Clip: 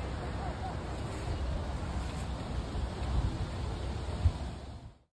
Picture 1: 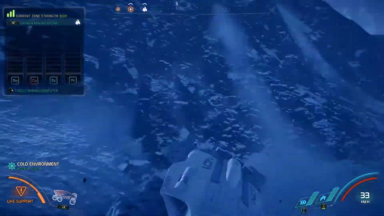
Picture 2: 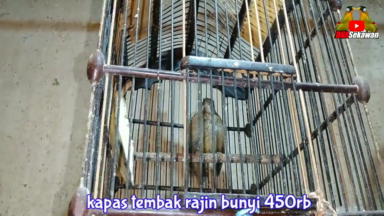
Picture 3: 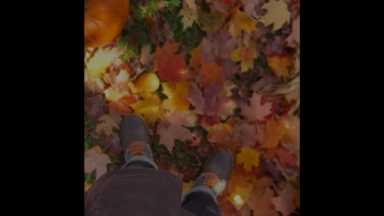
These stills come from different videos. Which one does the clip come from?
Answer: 3